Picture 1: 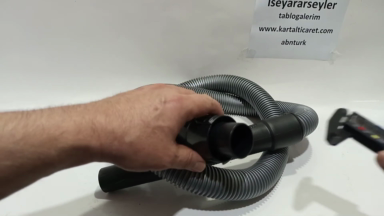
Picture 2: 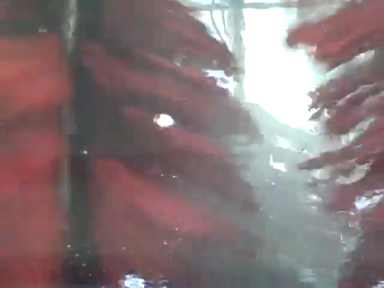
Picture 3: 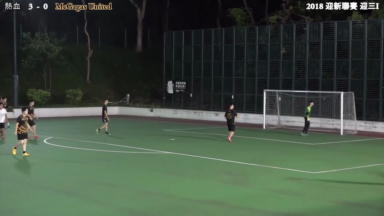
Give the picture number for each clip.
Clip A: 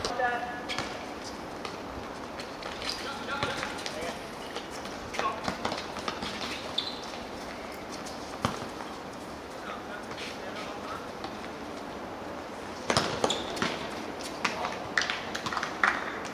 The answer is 3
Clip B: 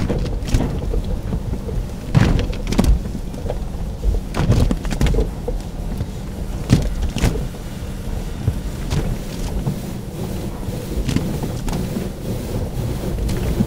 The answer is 2